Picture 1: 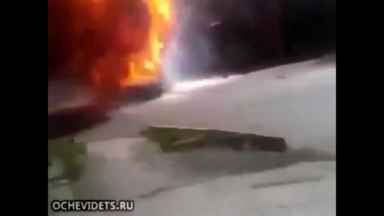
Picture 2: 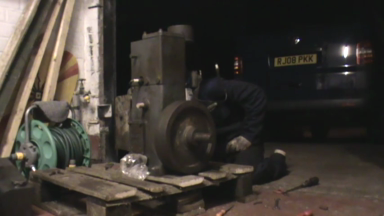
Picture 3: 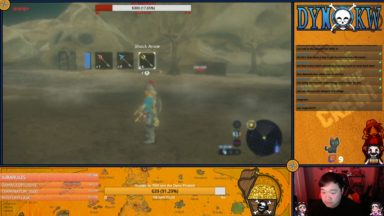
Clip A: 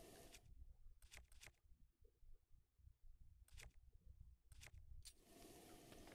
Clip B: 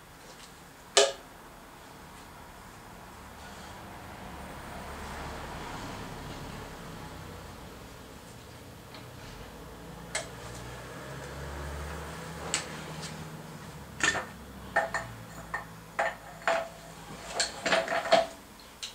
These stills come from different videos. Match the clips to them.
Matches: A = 3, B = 2